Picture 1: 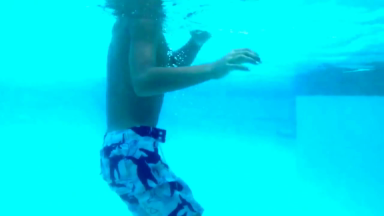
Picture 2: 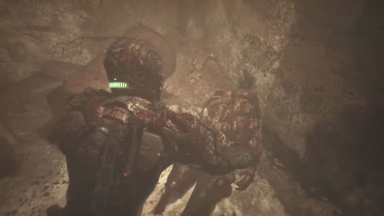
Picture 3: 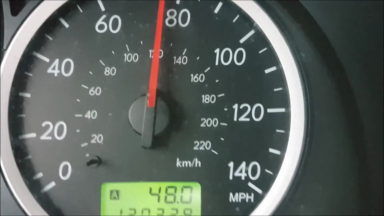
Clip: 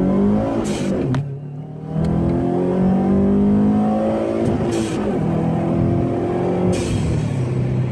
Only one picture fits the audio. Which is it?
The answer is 3